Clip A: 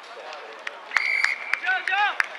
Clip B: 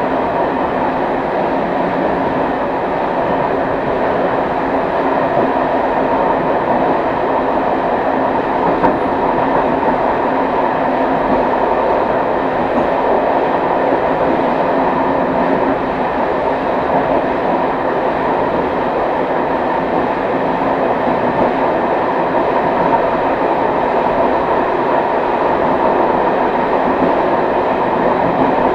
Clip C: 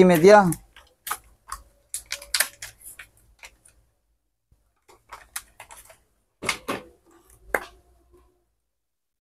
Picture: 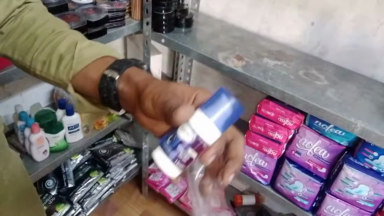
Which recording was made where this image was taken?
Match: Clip C